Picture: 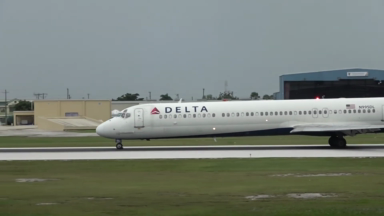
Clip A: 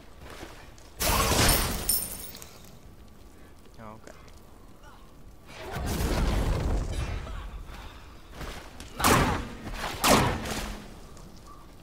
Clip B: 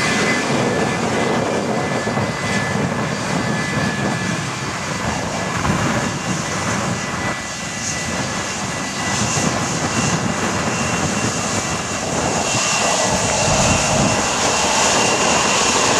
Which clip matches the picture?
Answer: B